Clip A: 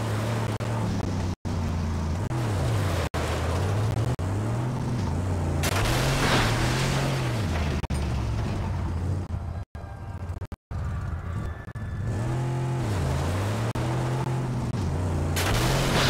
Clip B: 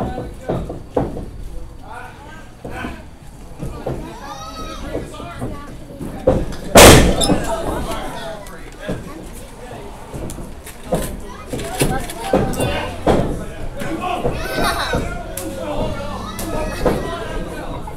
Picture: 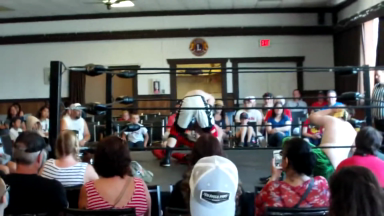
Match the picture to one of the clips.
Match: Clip B